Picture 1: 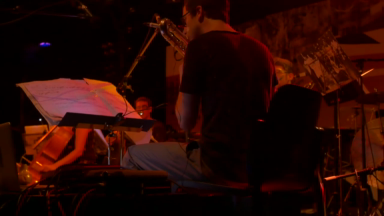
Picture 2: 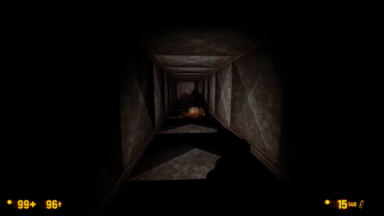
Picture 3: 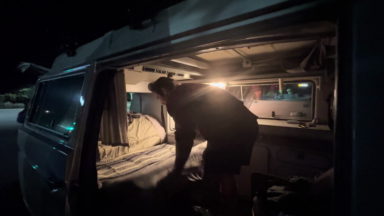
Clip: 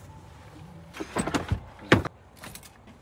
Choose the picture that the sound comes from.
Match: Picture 3